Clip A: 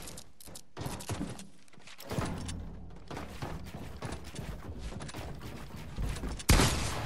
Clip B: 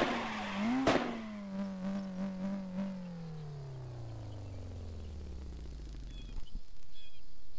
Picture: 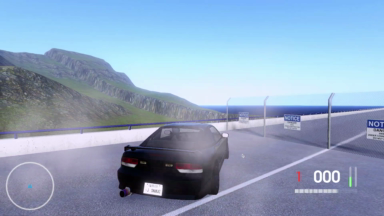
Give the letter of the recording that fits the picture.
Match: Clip B